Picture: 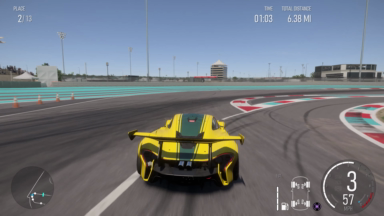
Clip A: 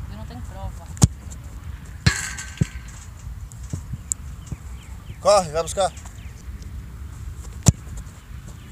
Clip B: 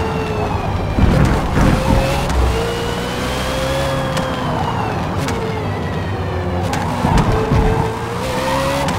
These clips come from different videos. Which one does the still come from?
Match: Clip B